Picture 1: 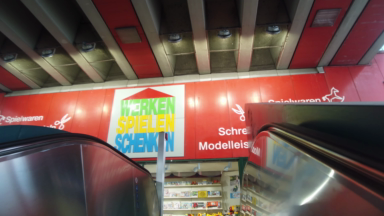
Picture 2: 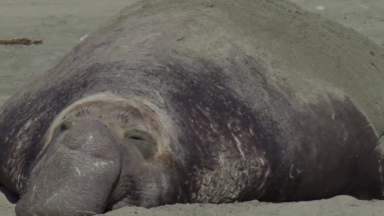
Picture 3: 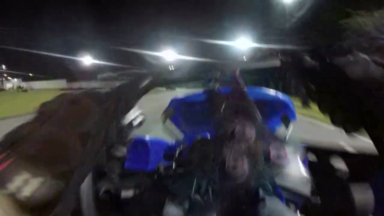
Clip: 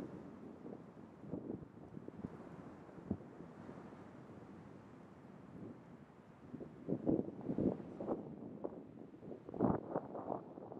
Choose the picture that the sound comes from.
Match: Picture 2